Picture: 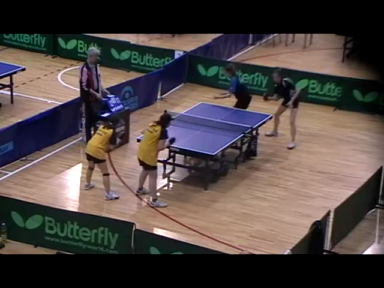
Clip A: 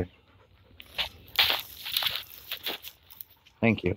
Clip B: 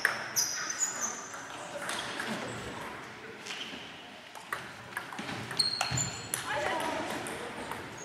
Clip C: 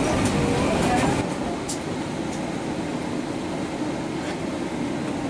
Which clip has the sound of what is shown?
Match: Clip B